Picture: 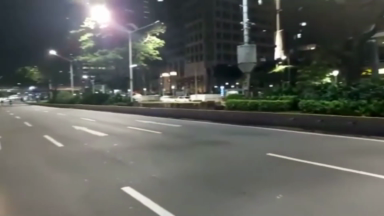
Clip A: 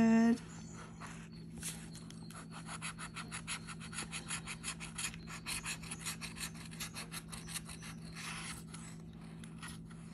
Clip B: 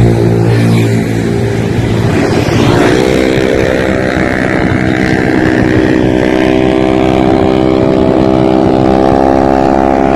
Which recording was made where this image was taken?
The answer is B